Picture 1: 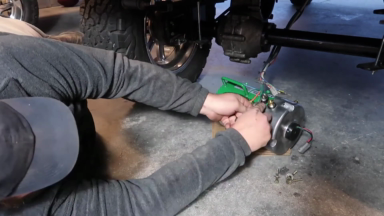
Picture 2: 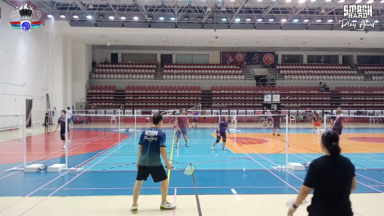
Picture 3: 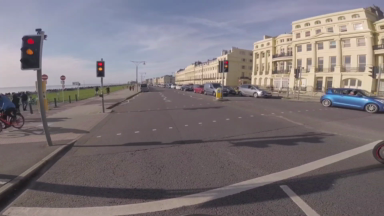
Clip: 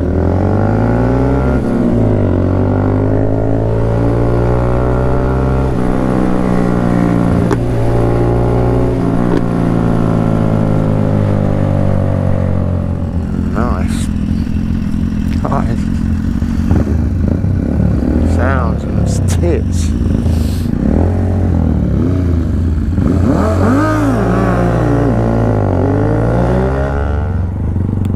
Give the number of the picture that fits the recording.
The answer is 3